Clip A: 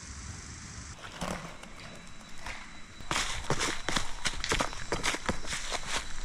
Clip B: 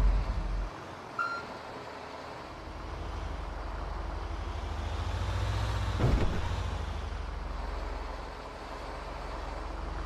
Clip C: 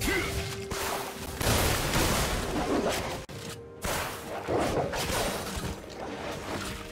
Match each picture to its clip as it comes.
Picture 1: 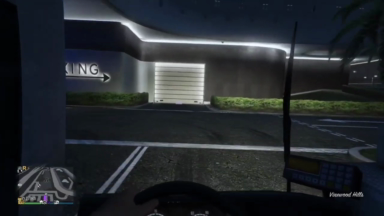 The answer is B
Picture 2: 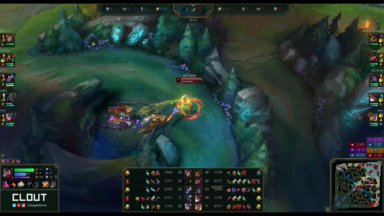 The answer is C